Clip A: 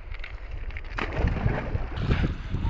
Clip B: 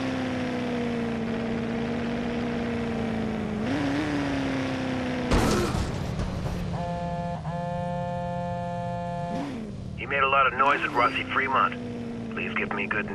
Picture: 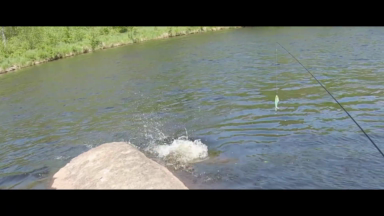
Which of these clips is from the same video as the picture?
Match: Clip A